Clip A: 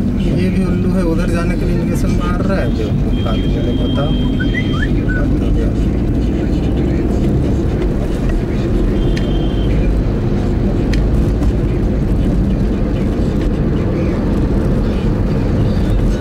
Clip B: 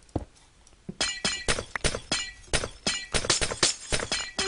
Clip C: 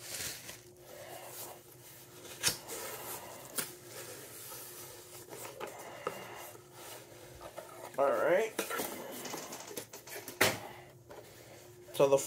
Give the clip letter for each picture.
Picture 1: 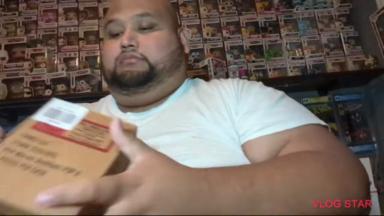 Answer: C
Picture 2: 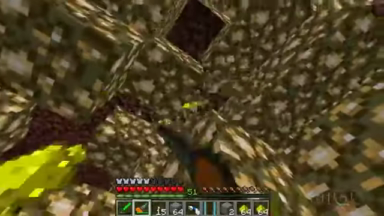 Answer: B